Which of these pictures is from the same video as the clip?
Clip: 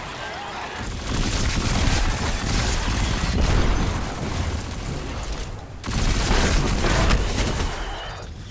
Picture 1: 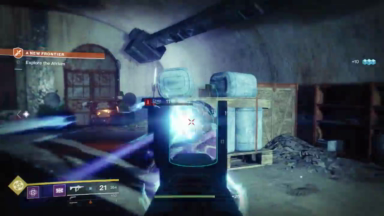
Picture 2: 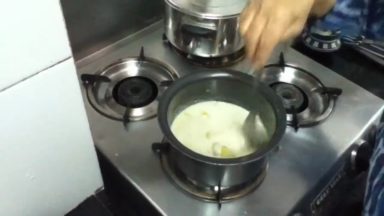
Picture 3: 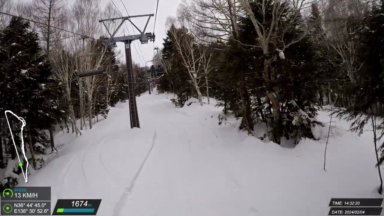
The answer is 1